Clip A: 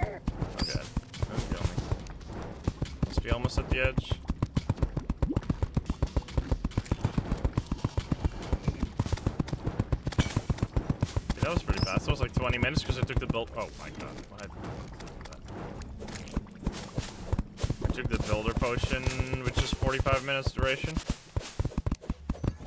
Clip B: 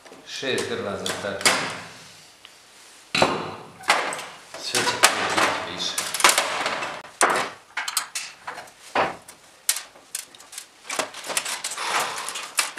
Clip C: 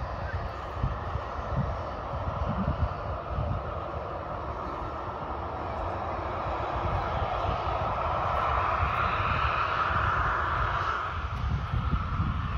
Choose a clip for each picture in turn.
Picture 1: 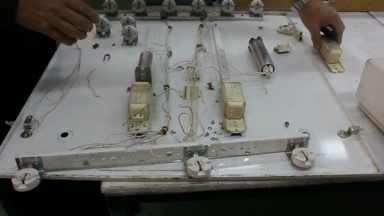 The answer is B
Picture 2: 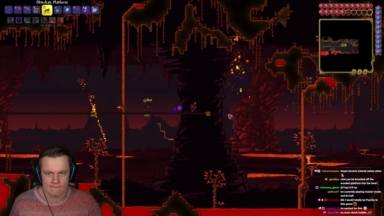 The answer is A